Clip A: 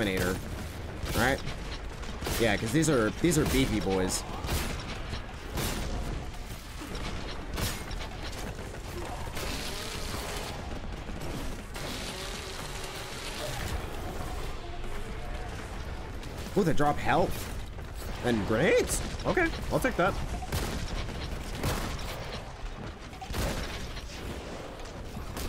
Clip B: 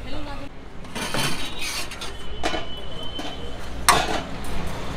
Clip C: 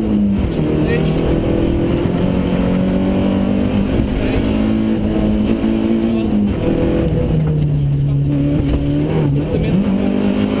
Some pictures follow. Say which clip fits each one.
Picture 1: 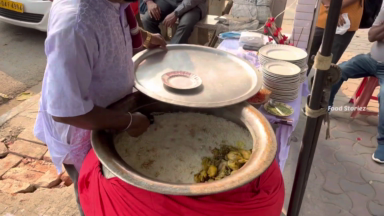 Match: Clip B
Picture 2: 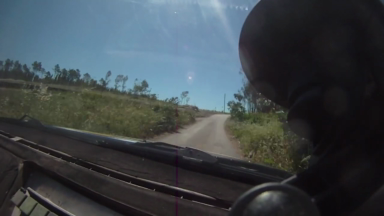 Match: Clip C